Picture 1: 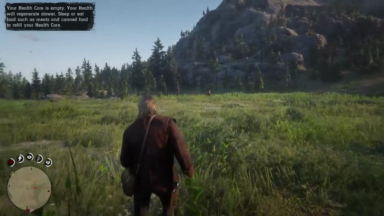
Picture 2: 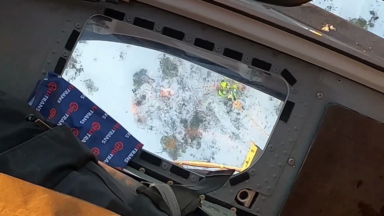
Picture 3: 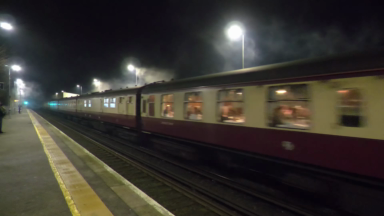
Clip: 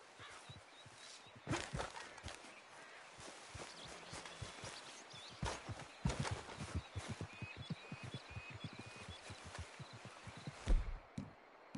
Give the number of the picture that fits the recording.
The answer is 1